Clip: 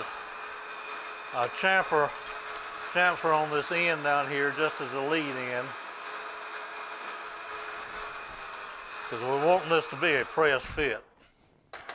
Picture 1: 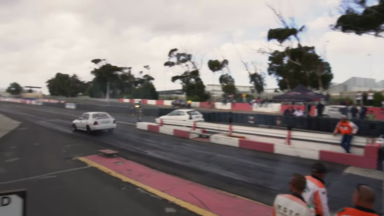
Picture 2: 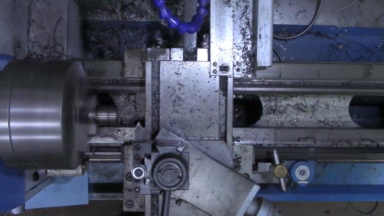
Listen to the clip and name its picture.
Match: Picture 2